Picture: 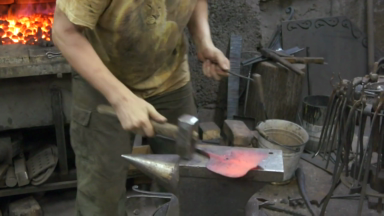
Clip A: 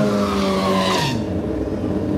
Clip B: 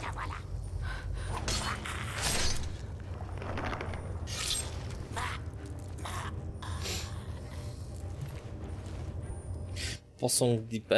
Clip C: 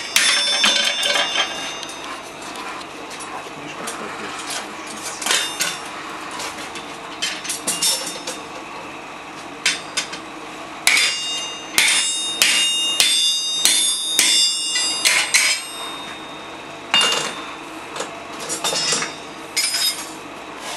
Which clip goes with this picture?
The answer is C